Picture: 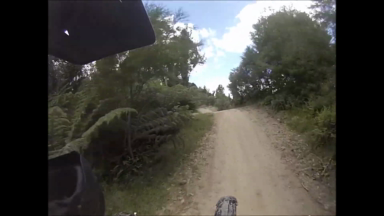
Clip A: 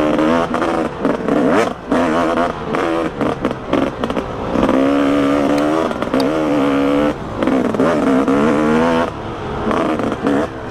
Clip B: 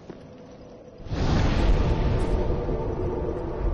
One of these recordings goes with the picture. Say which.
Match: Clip A